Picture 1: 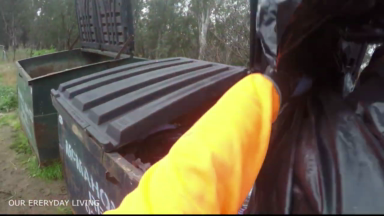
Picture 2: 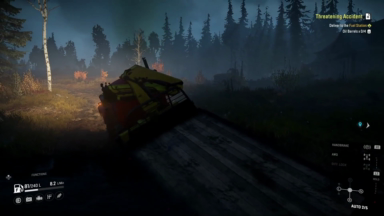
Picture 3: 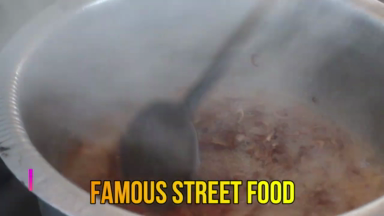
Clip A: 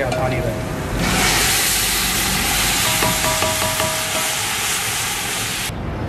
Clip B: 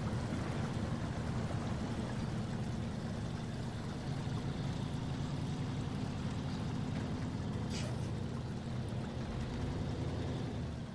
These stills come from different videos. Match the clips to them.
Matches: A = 3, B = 2